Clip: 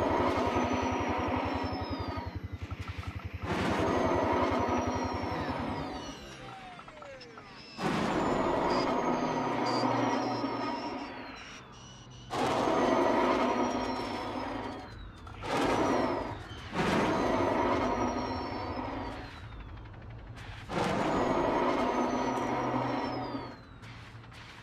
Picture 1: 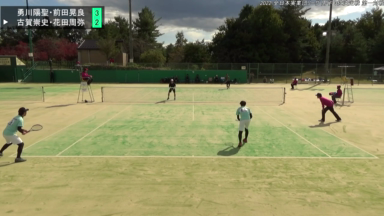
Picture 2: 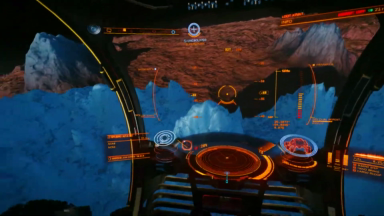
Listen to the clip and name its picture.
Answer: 2